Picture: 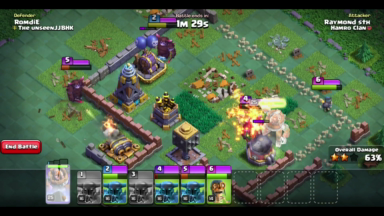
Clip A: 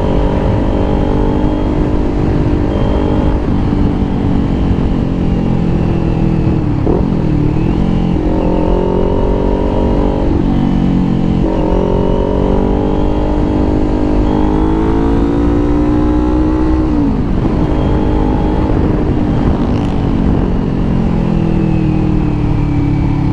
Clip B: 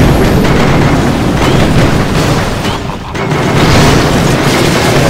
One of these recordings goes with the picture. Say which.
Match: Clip B